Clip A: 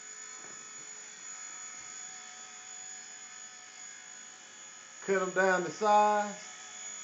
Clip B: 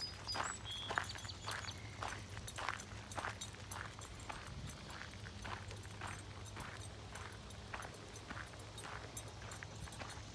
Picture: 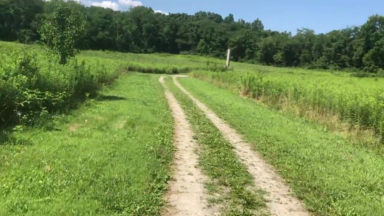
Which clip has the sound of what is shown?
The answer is B